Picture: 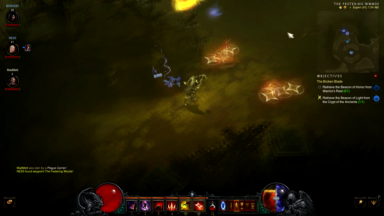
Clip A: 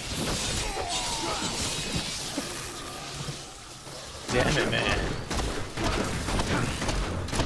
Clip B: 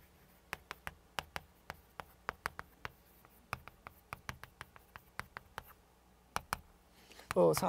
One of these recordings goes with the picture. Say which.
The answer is A